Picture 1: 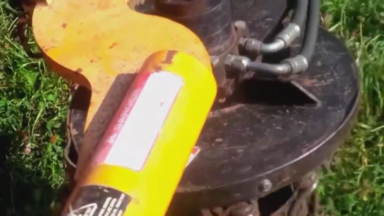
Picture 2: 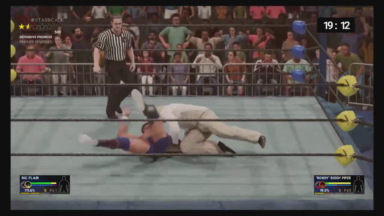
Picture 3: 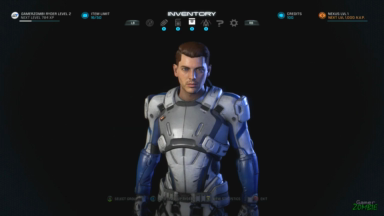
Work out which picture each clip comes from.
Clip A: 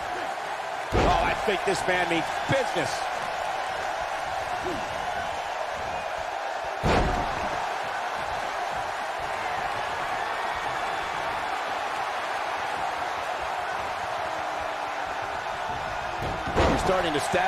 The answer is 2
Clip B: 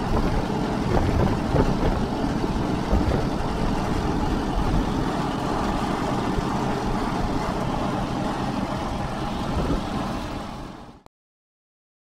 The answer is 1